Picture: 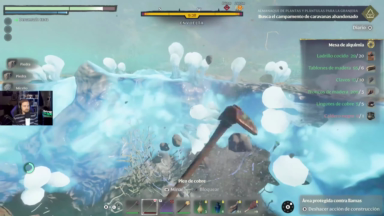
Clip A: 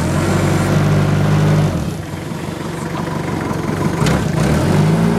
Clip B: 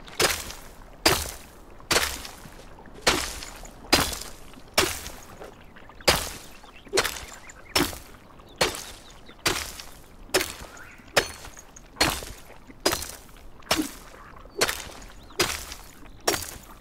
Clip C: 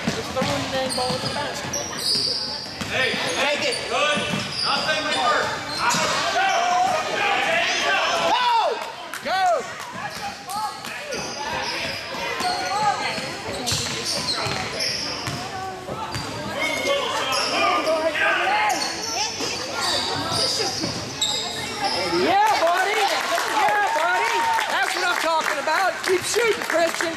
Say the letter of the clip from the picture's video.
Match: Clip B